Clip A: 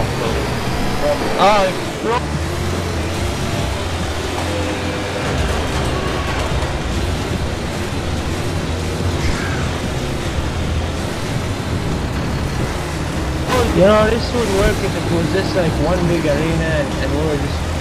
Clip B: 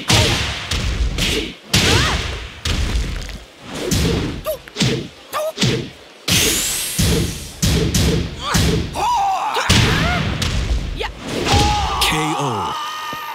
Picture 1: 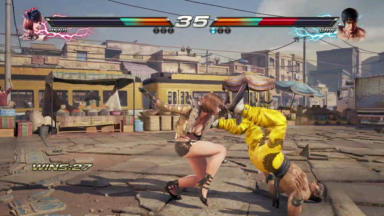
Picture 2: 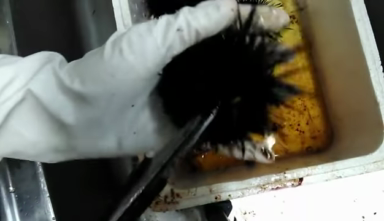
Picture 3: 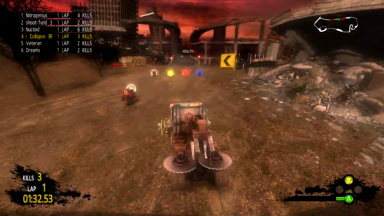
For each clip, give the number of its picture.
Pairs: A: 3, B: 1